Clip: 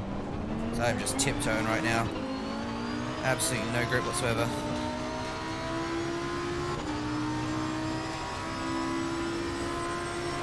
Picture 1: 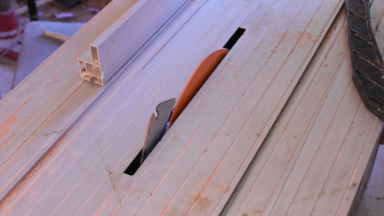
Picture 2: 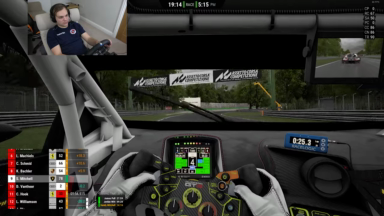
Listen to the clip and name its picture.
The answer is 2